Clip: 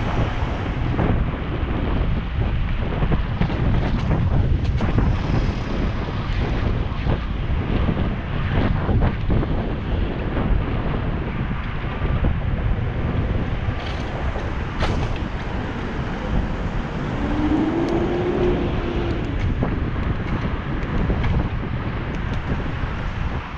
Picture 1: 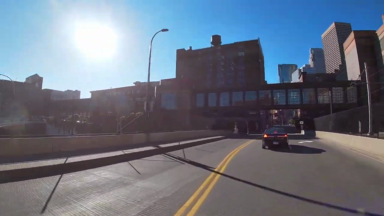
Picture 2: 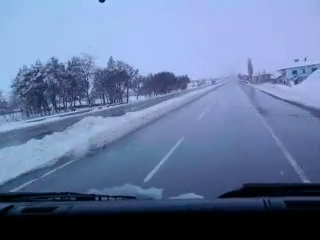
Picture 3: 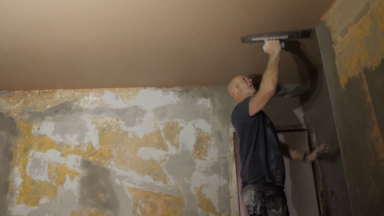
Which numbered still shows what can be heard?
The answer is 1